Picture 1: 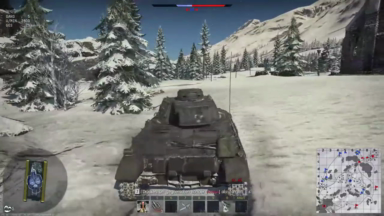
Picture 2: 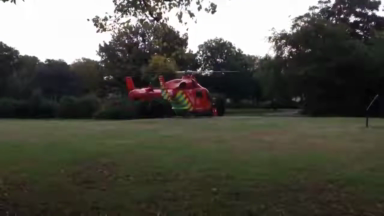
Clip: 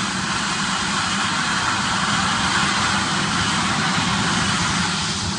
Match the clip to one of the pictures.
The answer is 2